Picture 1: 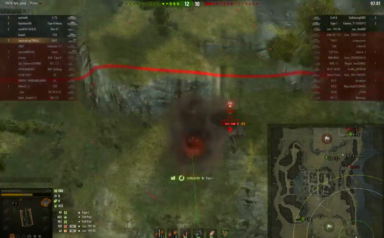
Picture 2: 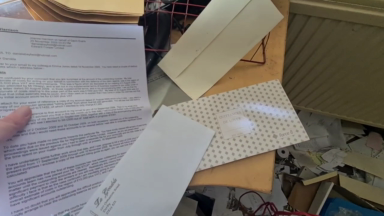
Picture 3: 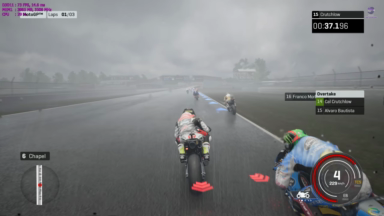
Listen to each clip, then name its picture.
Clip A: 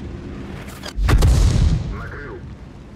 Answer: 1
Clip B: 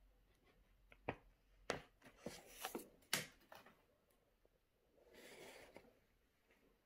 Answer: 2